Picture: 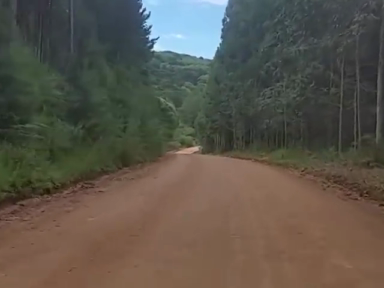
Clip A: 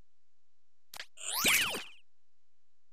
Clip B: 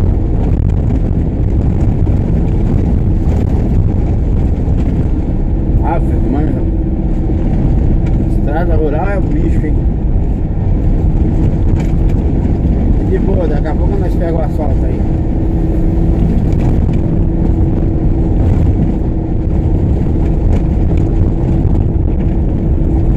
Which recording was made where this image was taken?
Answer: B